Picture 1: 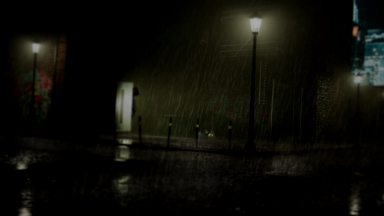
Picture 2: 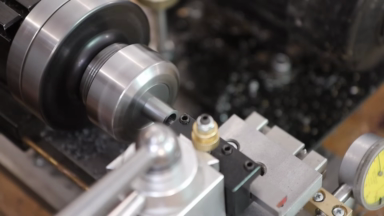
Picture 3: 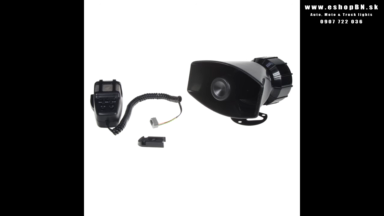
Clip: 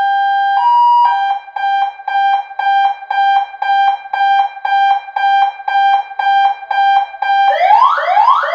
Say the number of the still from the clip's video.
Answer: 3